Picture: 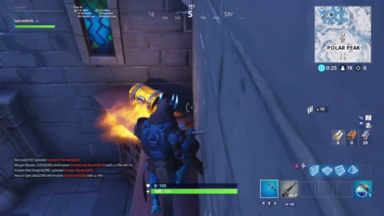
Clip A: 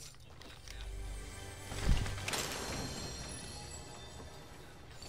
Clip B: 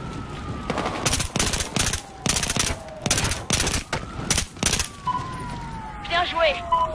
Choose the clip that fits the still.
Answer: A